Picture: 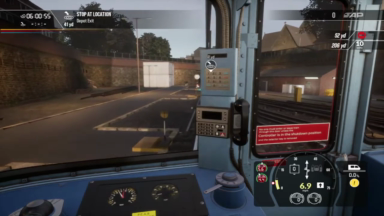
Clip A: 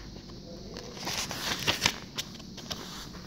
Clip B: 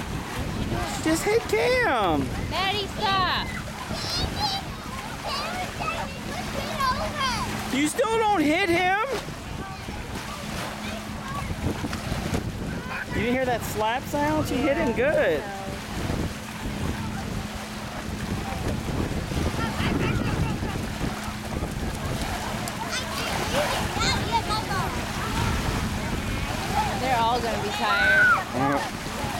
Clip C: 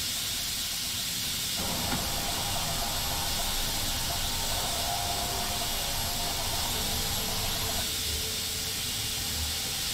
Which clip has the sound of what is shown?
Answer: C